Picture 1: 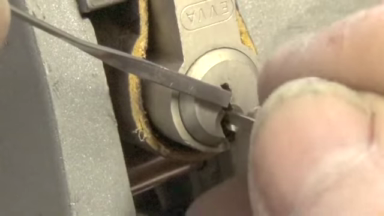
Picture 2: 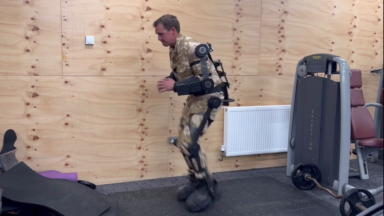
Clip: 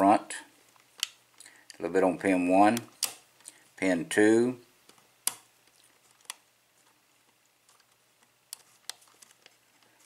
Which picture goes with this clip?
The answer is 1